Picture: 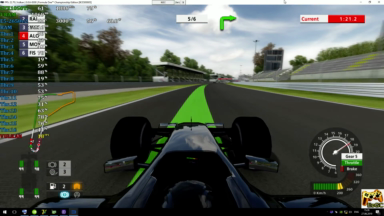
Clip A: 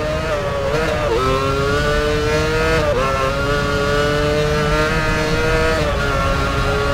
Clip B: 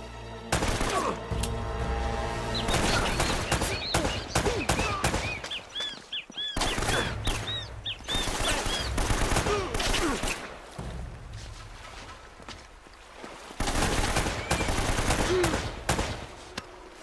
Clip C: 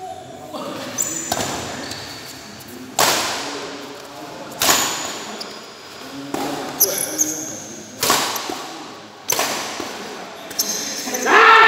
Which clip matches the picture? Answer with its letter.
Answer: A